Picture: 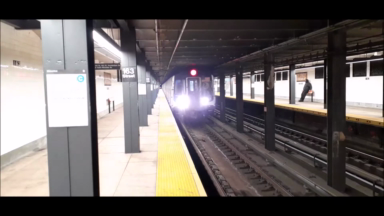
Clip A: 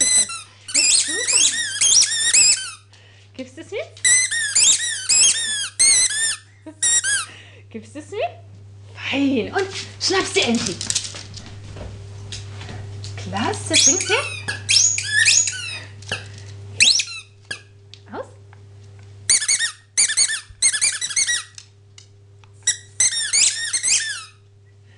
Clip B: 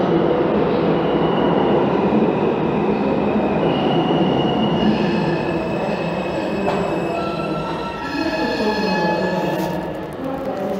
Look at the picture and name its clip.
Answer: B